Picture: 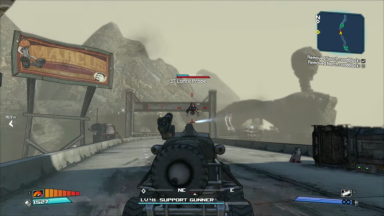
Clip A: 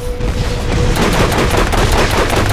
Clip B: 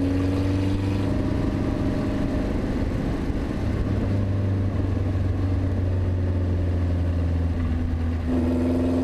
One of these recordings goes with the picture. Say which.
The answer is A